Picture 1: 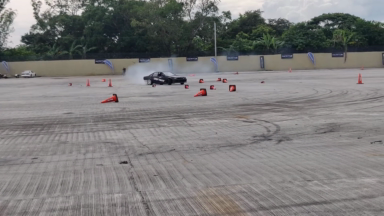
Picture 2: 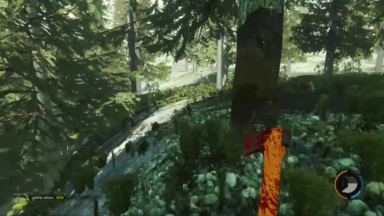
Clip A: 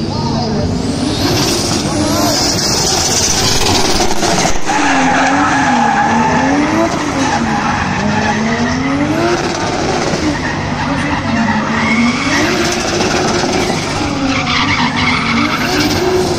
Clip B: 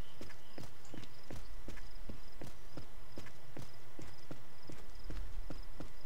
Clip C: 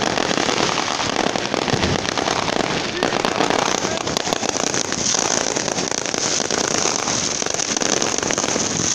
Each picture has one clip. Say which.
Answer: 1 A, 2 B